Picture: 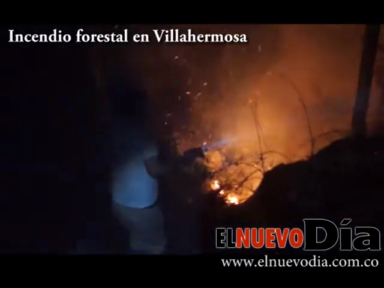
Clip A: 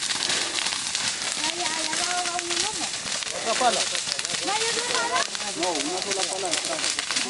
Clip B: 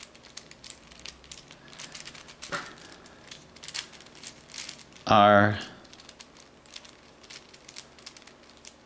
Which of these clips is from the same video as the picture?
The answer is A